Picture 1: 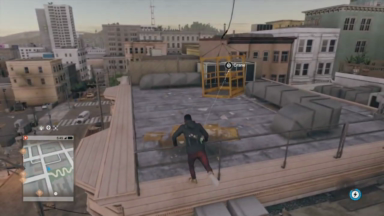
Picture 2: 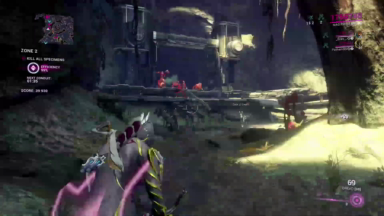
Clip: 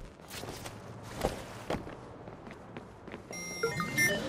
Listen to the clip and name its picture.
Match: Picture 1